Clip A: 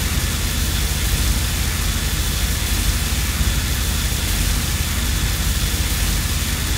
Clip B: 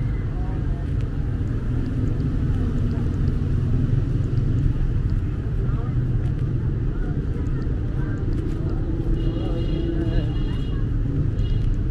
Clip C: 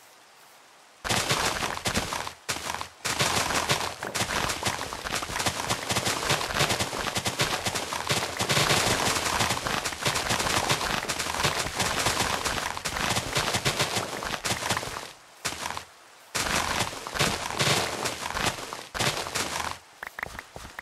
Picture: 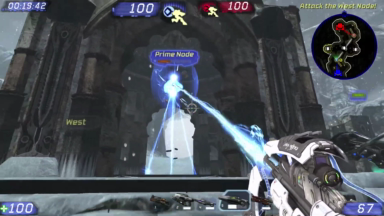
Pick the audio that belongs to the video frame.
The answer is A